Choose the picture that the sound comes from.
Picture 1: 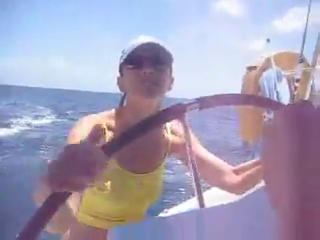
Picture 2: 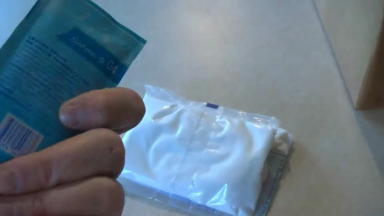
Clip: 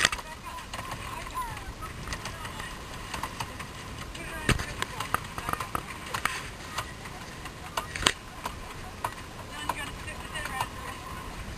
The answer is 1